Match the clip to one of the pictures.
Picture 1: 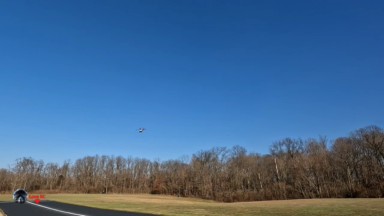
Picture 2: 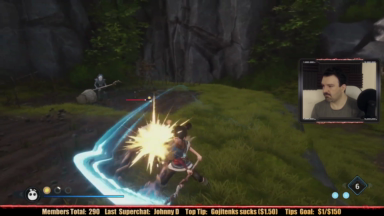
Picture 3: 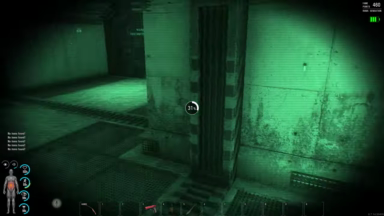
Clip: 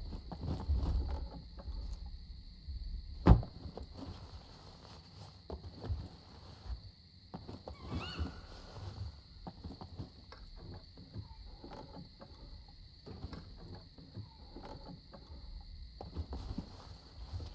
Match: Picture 3